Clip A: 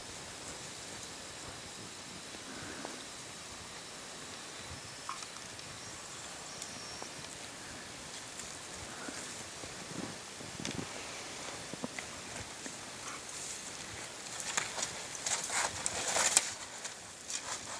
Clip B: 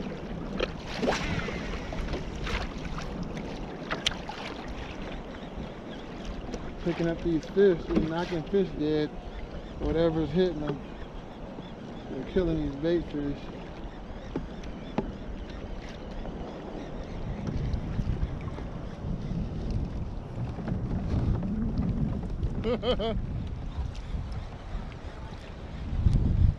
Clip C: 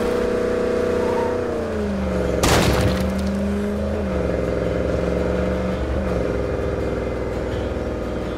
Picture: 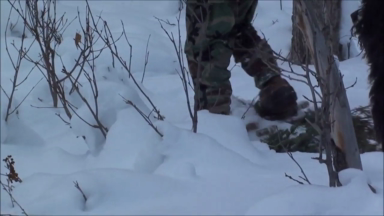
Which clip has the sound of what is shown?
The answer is A